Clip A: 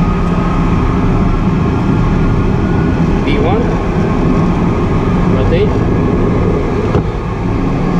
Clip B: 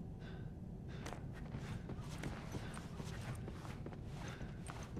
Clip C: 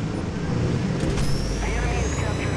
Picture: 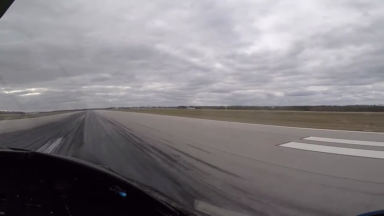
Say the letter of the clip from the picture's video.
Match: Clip A